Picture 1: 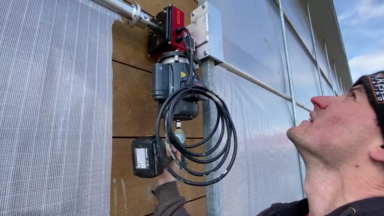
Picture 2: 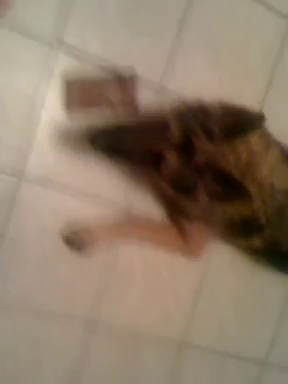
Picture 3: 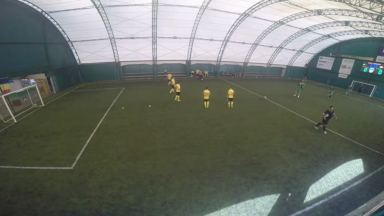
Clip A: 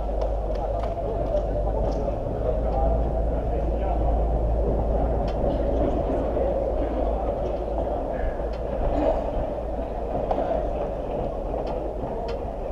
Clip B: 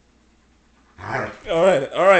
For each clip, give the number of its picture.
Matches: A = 3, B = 2